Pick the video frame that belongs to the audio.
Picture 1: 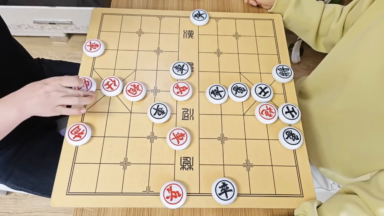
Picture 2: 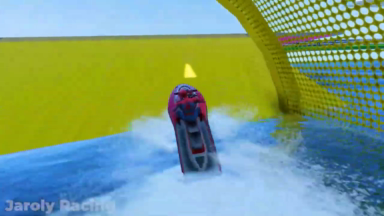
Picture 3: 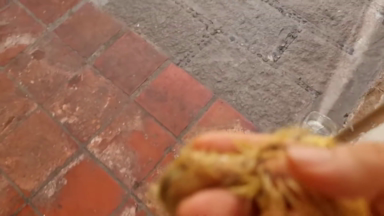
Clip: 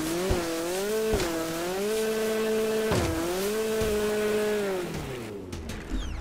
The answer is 2